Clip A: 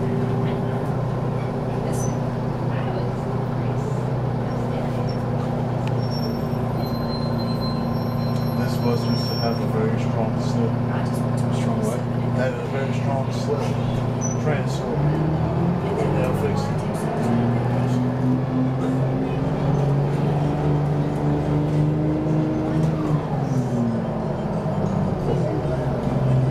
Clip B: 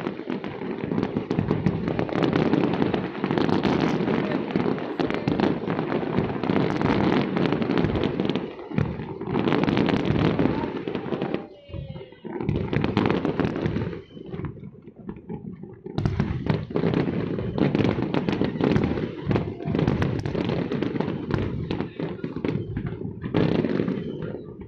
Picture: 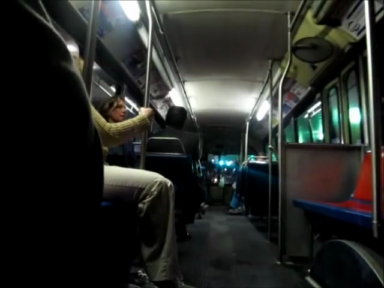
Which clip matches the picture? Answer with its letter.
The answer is A